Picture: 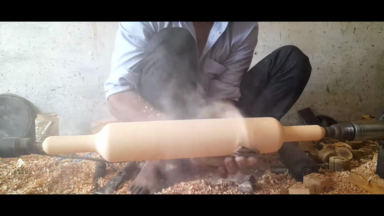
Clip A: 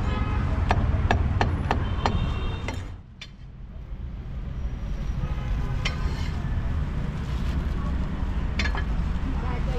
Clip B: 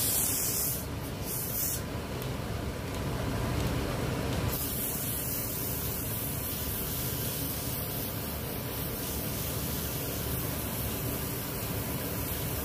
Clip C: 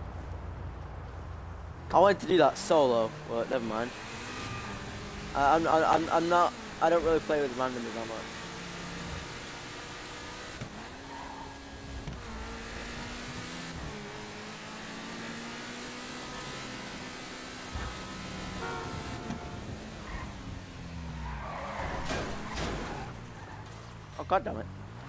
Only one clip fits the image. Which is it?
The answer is B